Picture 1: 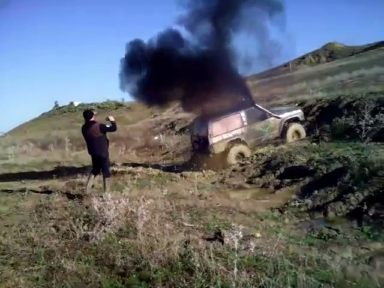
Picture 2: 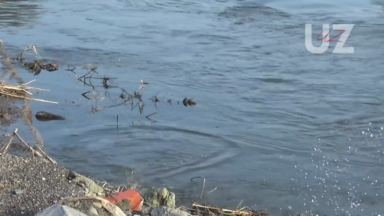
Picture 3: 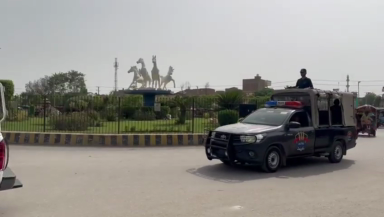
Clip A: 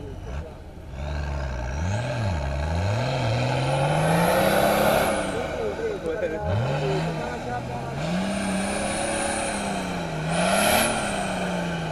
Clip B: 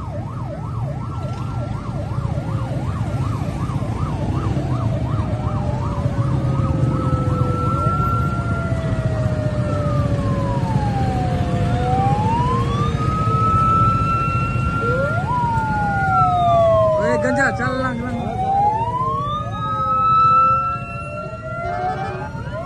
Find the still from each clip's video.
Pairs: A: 1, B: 3